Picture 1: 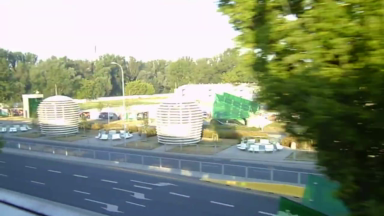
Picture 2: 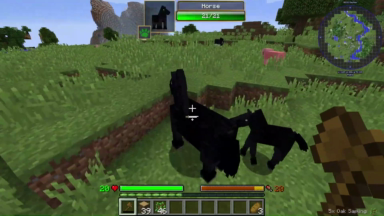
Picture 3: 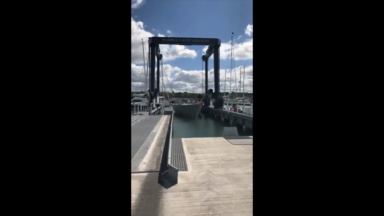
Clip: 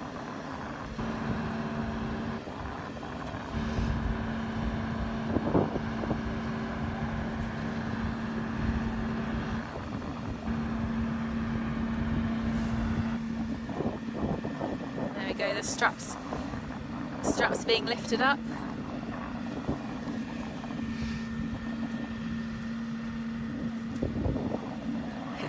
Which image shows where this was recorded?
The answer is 3